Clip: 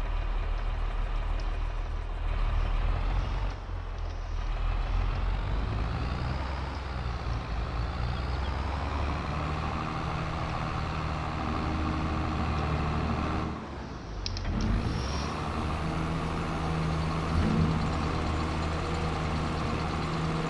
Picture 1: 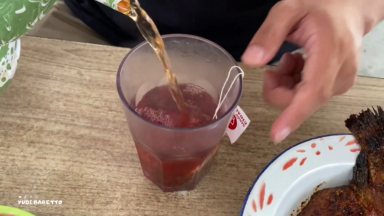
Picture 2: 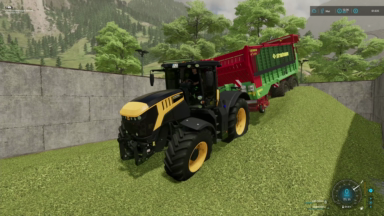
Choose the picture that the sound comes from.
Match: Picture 2